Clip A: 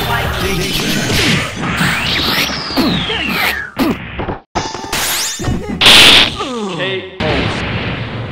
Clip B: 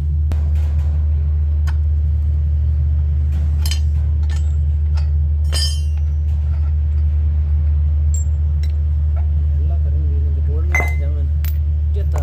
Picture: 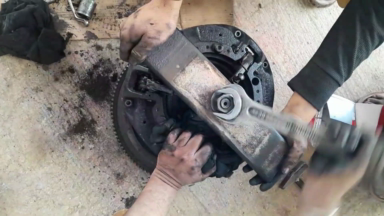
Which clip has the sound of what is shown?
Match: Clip B